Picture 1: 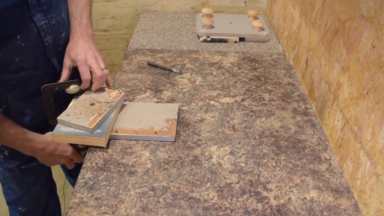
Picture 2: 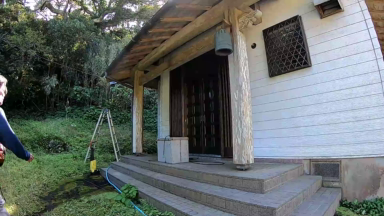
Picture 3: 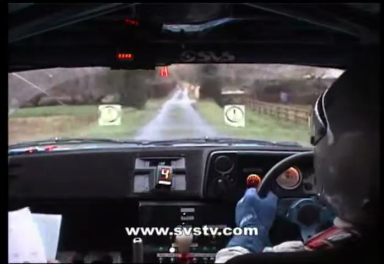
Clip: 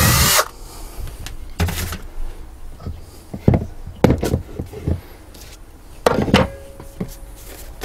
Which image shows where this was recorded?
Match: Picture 1